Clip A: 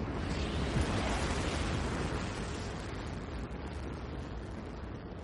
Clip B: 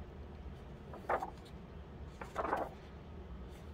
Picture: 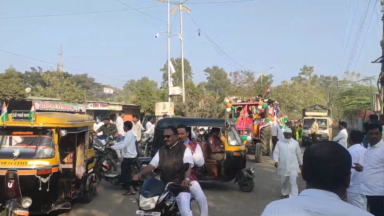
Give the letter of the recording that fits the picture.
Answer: A